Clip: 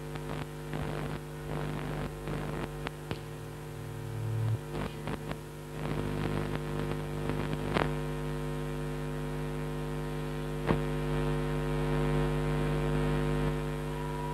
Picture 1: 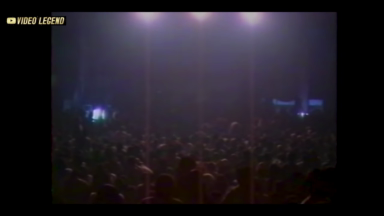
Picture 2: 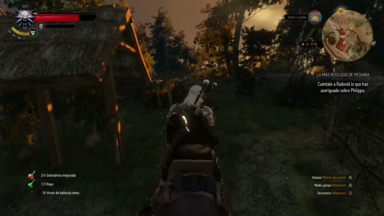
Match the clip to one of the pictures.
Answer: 1